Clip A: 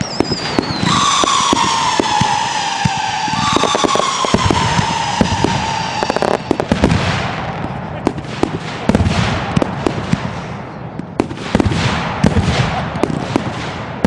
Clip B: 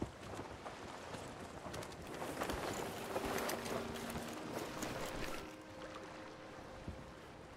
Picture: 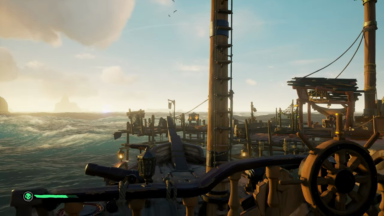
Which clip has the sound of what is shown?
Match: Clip B